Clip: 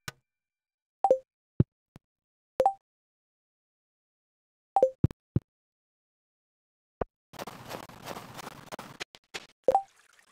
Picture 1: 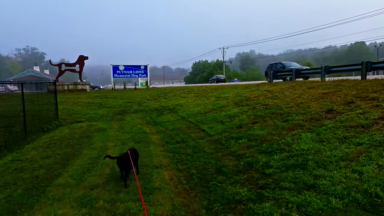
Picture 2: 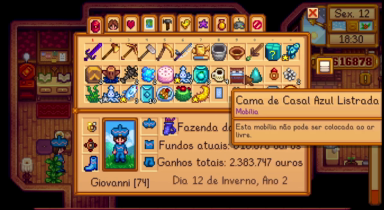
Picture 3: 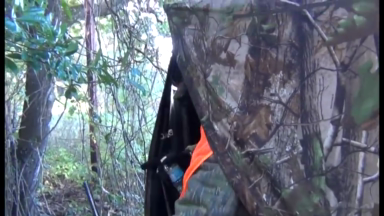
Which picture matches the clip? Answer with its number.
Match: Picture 2